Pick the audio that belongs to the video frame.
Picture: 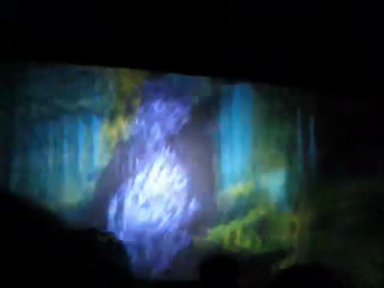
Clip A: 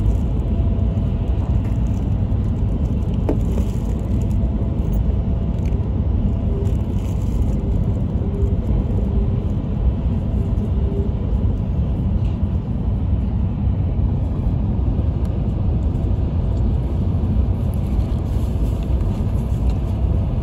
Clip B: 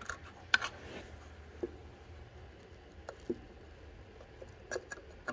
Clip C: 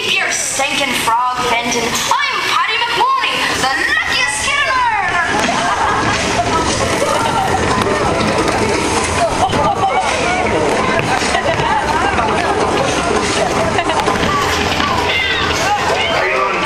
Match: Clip C